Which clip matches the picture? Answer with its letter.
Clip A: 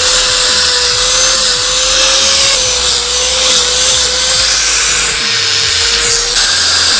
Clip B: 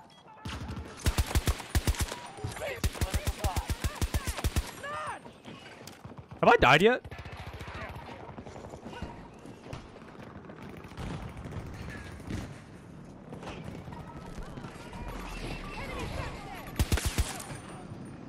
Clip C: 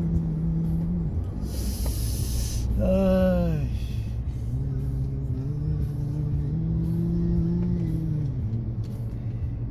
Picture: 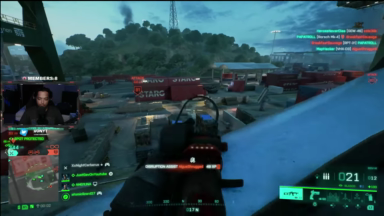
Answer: B